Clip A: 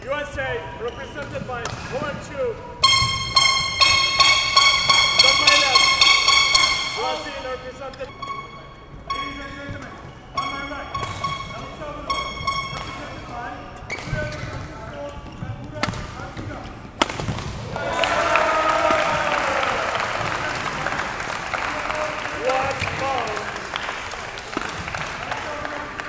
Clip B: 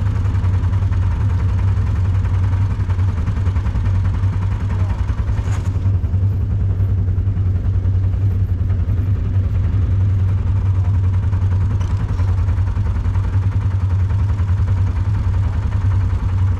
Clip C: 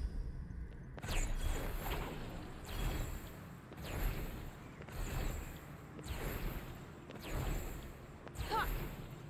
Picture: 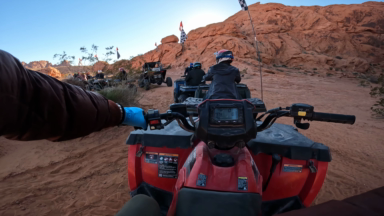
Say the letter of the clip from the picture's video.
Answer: B